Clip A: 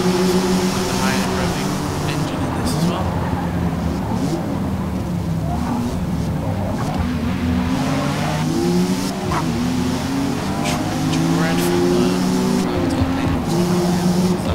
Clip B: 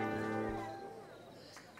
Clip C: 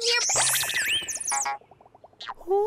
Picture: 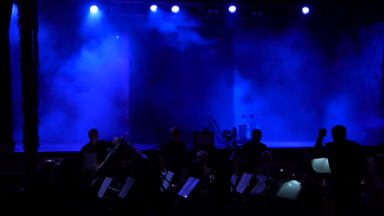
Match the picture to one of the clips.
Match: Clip B